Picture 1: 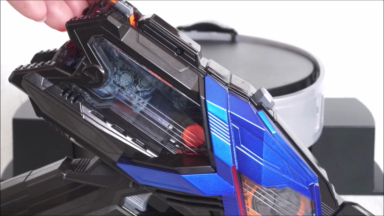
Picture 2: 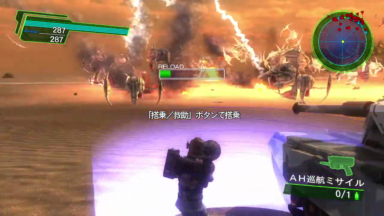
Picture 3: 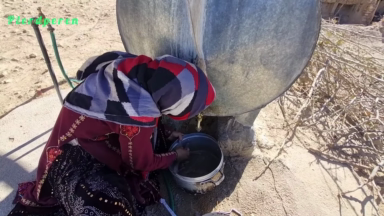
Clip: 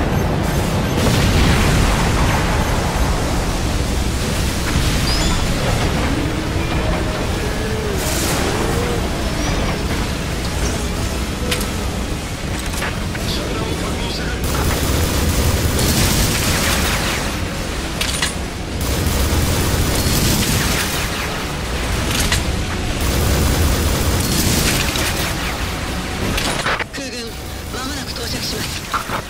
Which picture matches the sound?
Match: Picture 2